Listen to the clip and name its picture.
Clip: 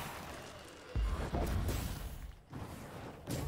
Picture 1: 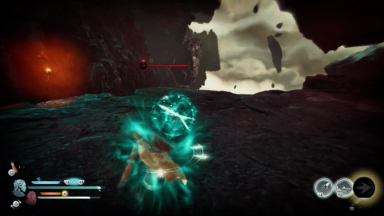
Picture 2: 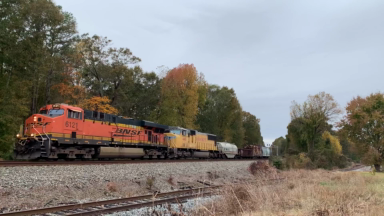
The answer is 1